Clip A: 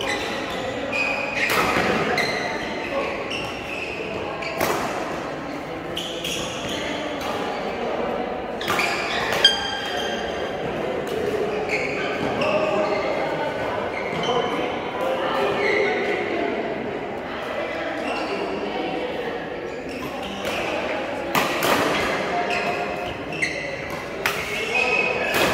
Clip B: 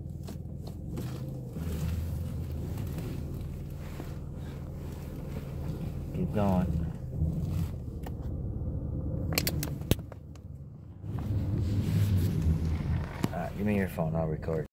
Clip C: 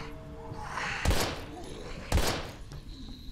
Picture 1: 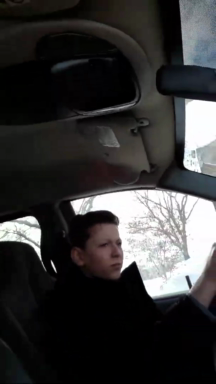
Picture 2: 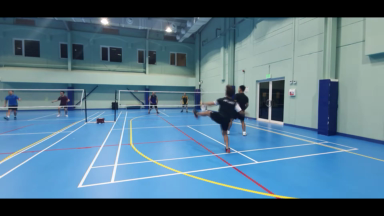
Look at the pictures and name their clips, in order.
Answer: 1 B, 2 A